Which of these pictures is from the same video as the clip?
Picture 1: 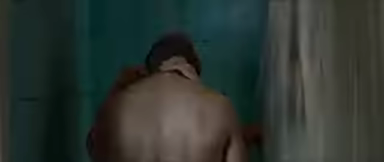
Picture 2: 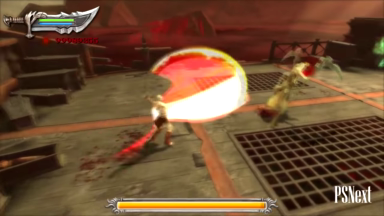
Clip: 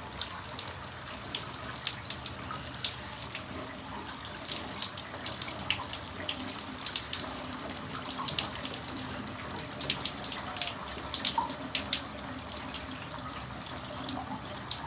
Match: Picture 1